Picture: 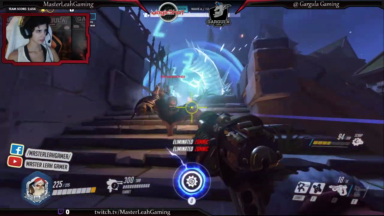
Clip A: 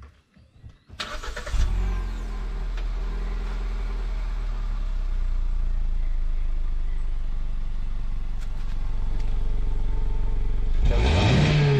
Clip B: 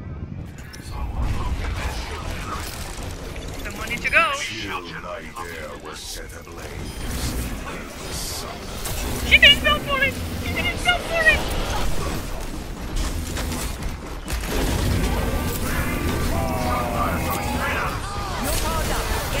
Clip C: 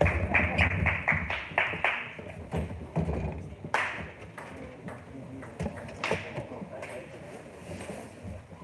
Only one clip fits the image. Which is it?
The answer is B